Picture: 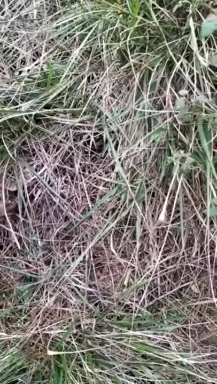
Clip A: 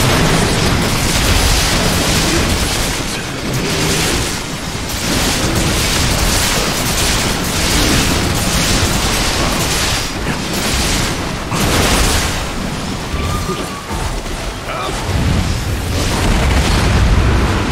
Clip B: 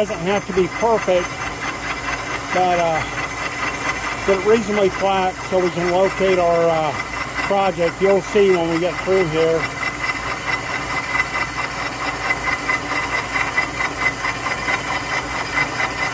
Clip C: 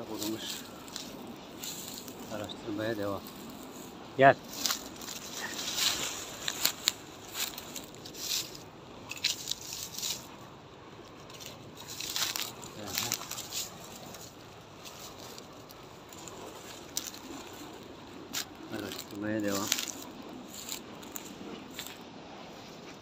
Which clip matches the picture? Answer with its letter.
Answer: C